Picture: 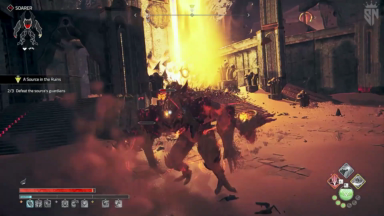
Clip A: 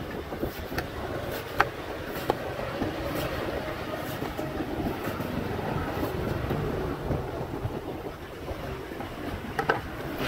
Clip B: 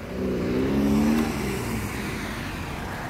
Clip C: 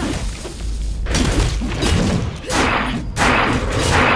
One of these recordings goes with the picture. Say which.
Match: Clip C